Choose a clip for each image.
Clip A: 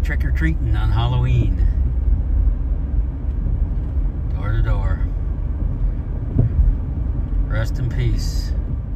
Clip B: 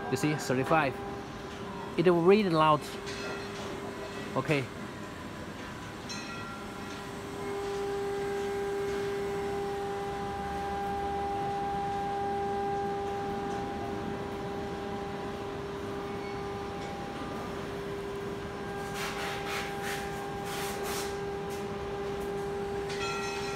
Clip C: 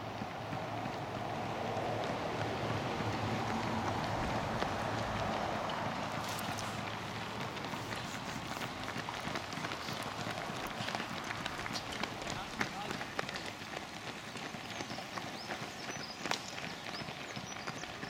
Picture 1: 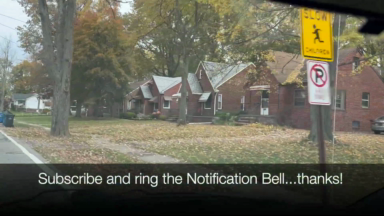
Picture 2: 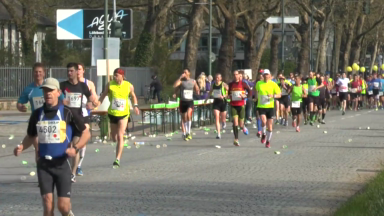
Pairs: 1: A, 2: C